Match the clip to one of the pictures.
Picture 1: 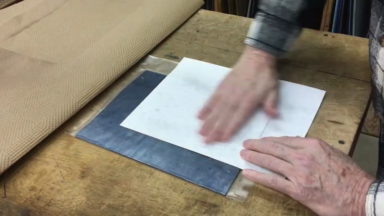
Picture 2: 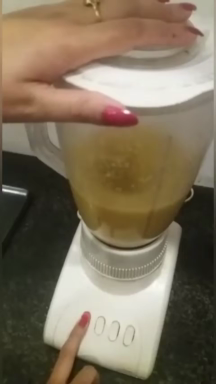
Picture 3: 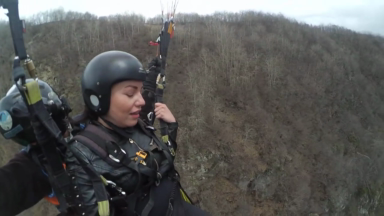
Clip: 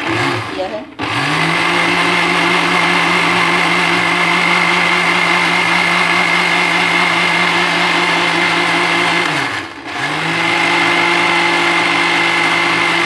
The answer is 2